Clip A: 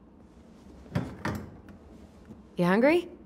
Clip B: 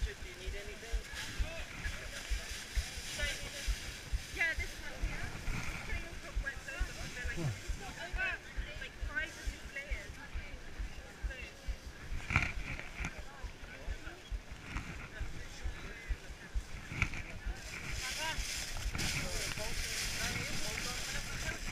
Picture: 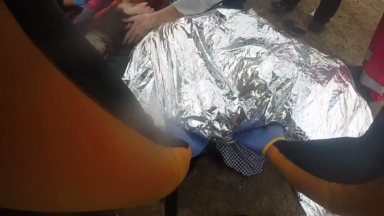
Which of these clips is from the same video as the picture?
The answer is B